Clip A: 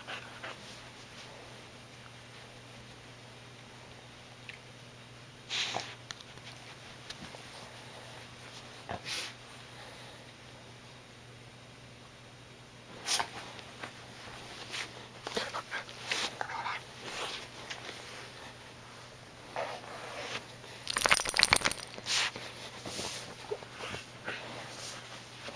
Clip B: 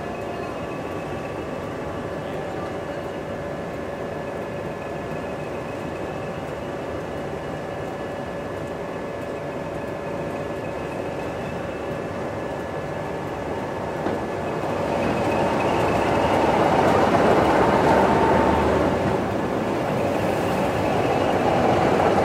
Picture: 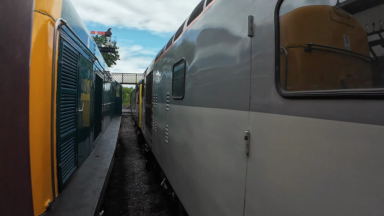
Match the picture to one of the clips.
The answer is B